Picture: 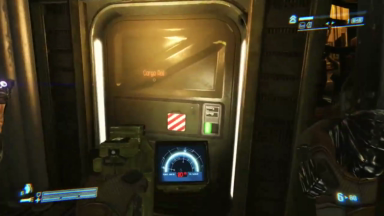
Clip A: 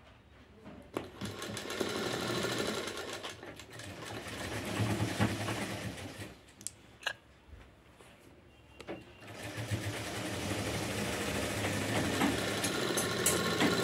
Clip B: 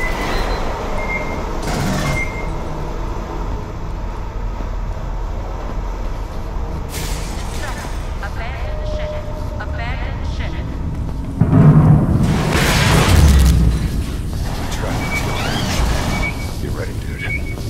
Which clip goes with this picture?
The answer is B